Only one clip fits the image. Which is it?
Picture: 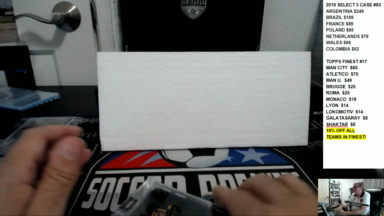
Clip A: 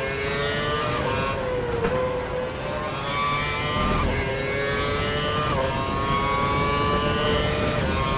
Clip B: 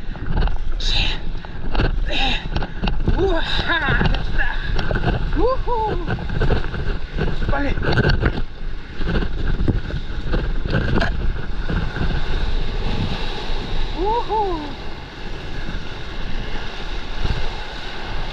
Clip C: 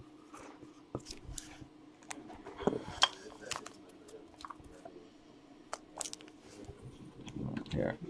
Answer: C